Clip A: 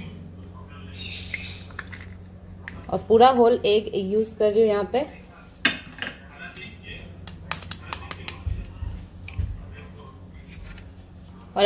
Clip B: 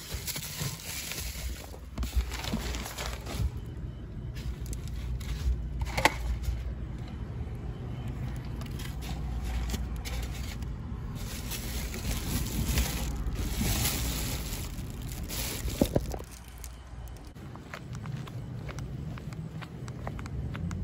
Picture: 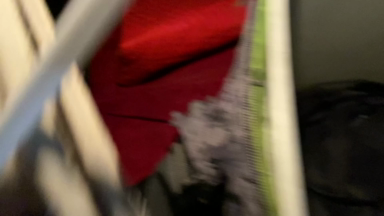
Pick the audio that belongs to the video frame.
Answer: B